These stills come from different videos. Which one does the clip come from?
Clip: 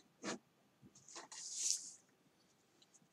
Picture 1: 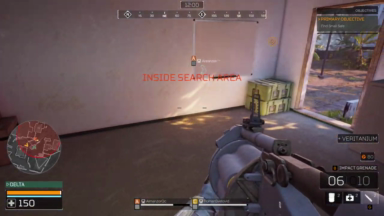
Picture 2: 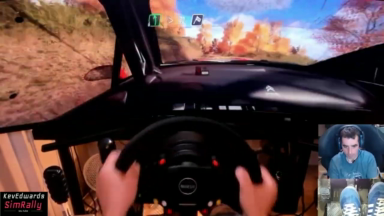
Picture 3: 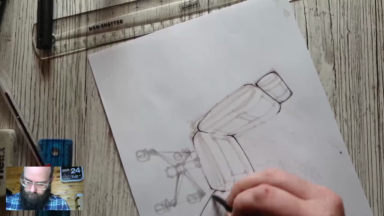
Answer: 3